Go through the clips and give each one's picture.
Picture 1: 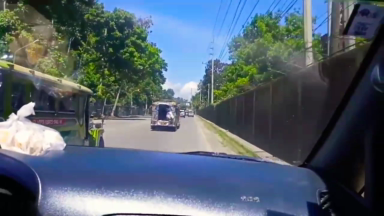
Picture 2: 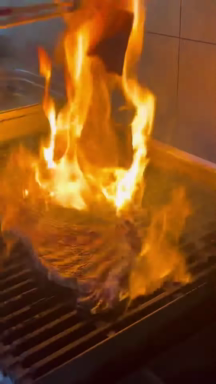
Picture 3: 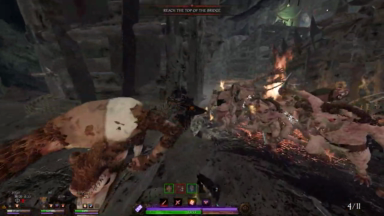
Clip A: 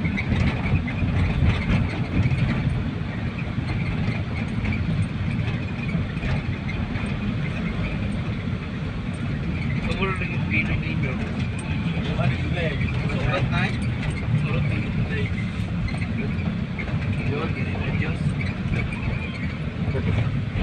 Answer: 1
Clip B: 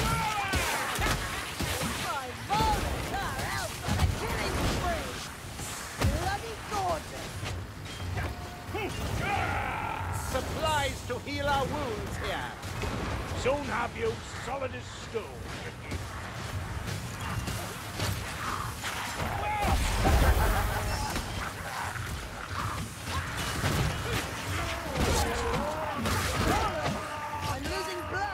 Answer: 3